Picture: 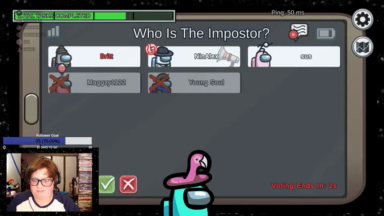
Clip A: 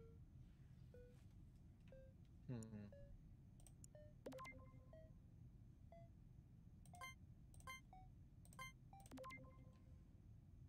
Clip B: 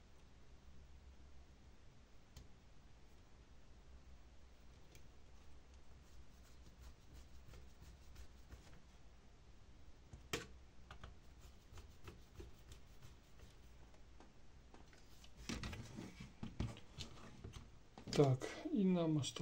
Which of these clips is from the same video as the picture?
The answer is A